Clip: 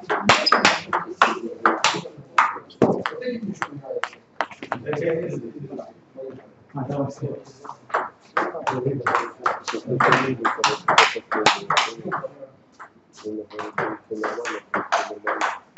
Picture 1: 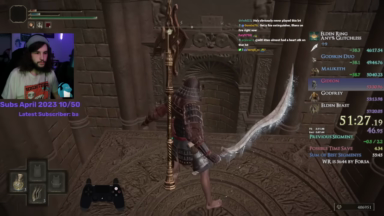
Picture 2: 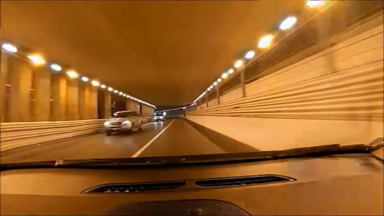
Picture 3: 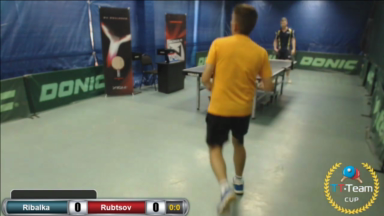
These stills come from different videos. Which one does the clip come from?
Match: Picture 3